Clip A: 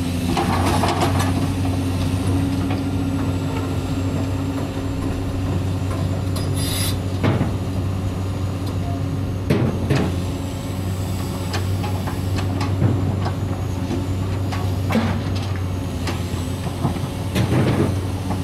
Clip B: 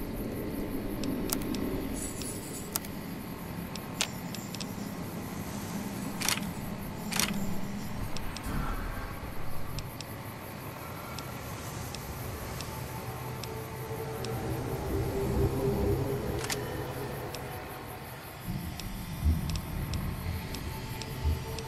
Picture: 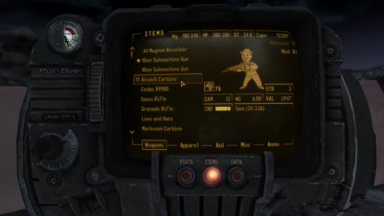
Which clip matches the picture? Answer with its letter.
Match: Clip B